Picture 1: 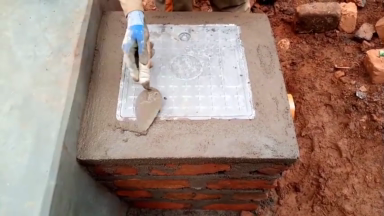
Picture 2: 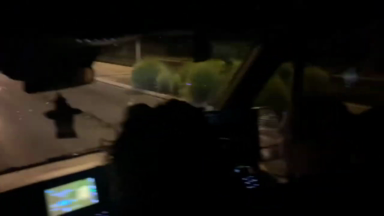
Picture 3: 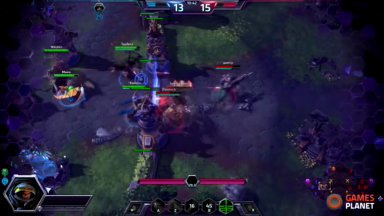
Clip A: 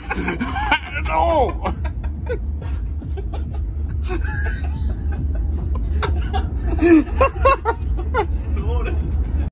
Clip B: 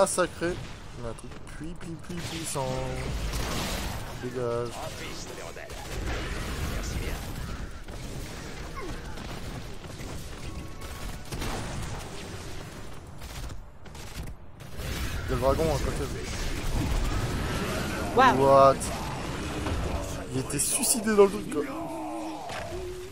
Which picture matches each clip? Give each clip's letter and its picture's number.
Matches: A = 2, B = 3